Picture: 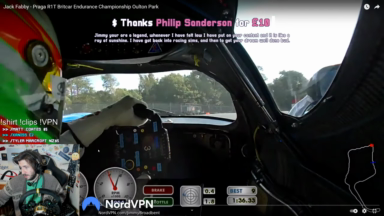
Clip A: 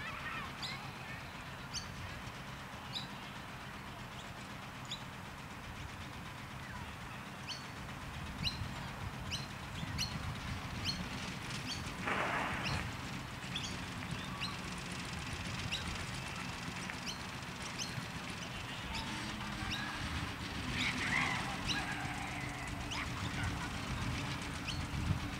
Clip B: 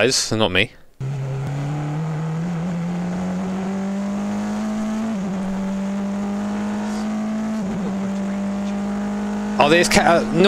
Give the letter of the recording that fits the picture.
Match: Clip B